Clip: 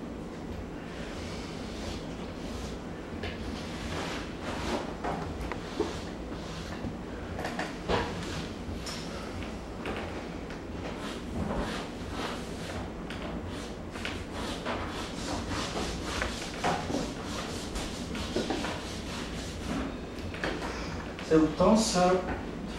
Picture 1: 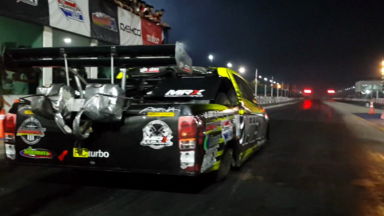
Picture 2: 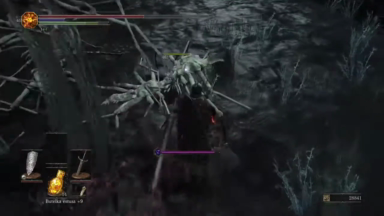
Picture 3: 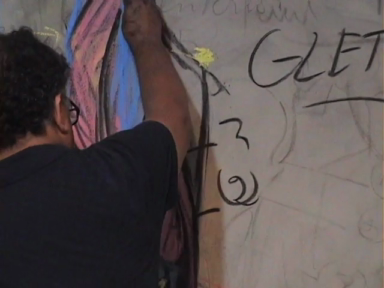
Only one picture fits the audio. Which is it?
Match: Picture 3